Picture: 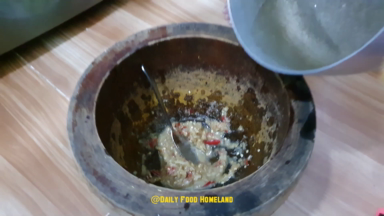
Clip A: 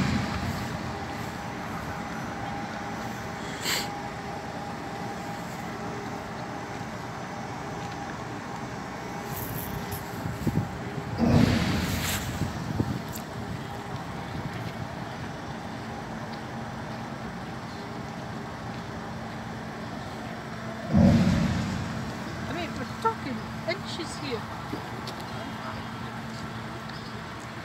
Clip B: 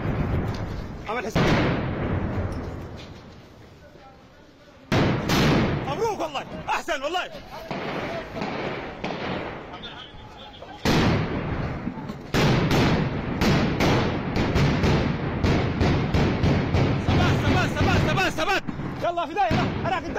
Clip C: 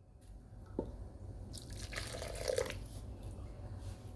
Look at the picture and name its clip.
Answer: C